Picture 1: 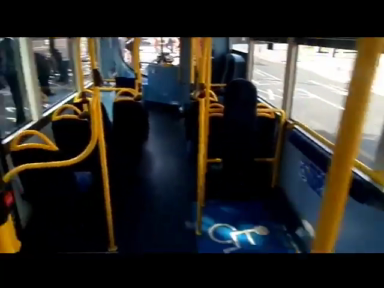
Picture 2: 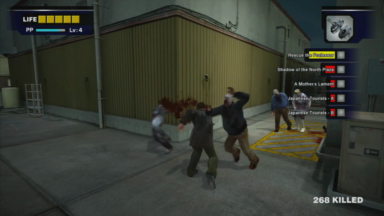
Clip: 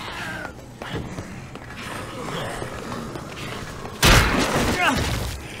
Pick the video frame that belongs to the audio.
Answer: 2